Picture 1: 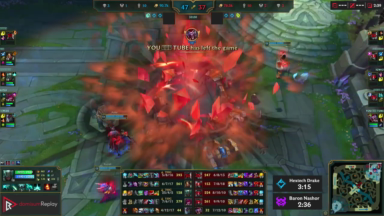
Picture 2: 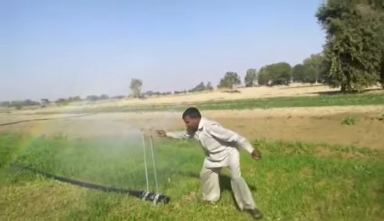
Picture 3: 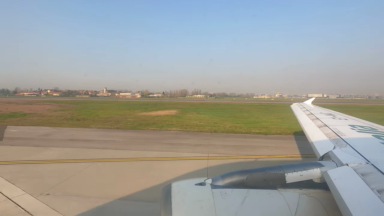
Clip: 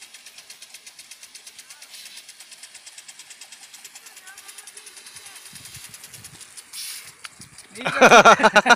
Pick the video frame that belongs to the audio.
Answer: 2